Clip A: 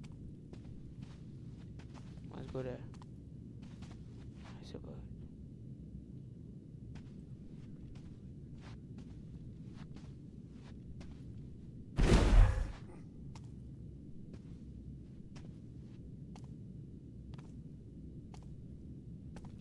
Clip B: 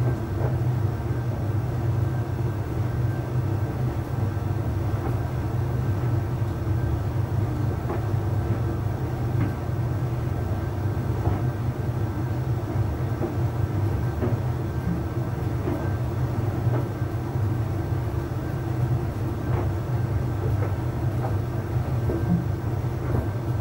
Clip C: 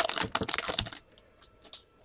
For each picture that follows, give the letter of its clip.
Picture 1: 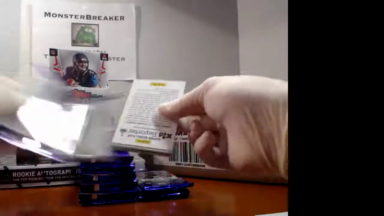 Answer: C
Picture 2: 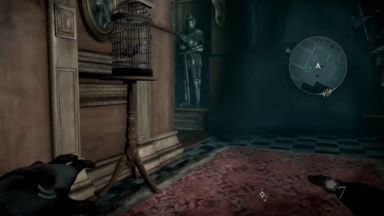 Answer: A